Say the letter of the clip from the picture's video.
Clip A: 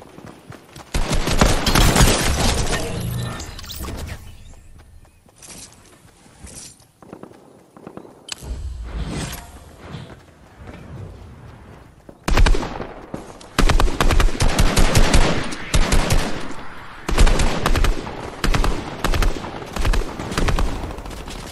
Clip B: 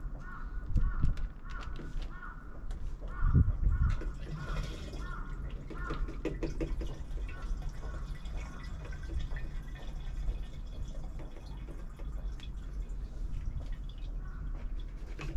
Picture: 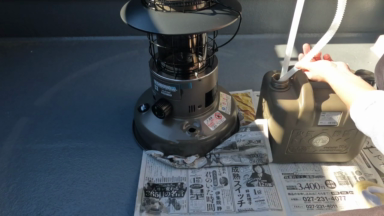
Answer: B